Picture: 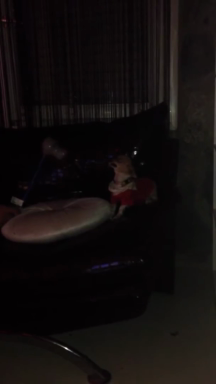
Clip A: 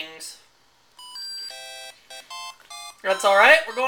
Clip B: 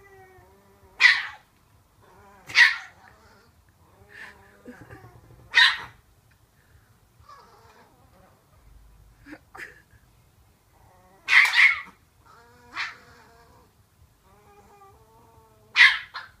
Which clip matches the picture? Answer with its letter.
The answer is B